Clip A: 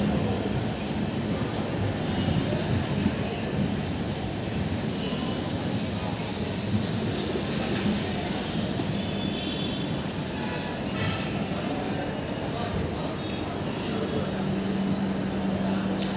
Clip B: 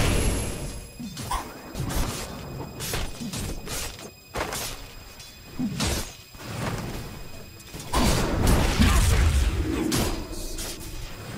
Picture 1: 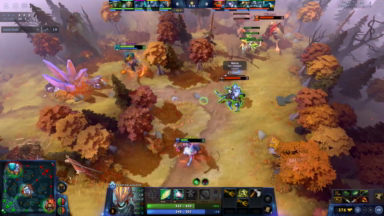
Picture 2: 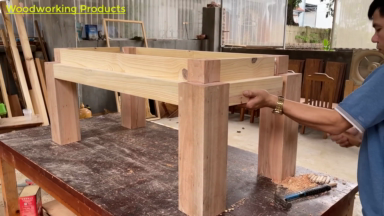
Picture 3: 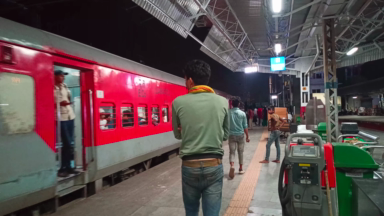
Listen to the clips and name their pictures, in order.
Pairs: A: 3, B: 1